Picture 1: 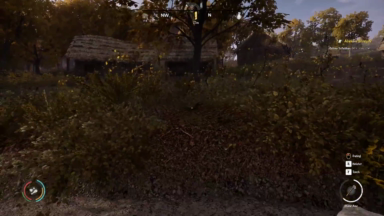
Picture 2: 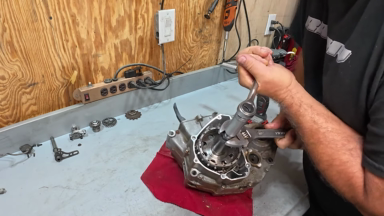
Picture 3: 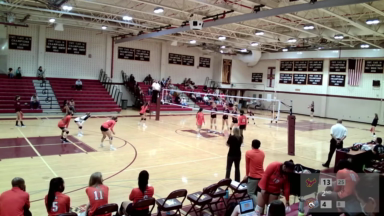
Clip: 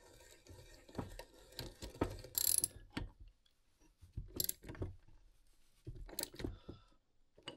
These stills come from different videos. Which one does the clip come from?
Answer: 2